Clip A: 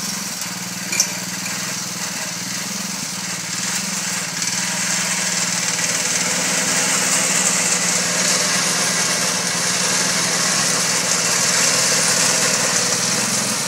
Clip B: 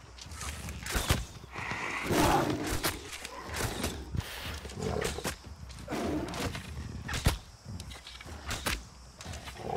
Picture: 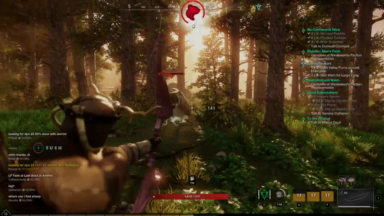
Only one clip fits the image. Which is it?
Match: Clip B